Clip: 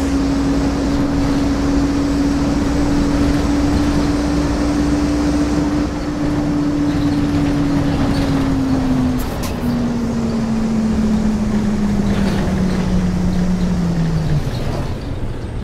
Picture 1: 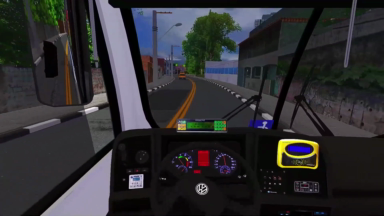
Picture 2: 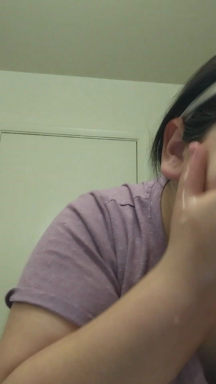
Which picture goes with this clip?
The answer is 1